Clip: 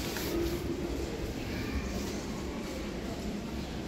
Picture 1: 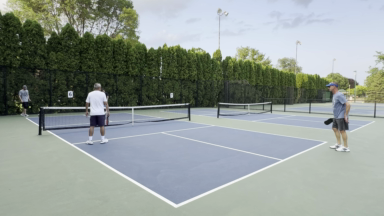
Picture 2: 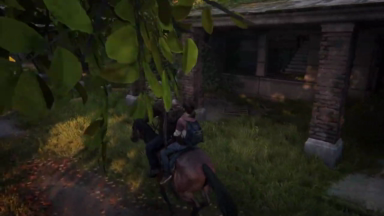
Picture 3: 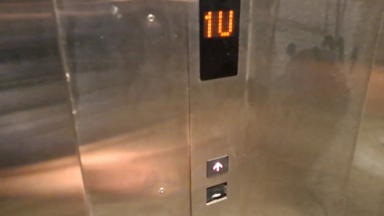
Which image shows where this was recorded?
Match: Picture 3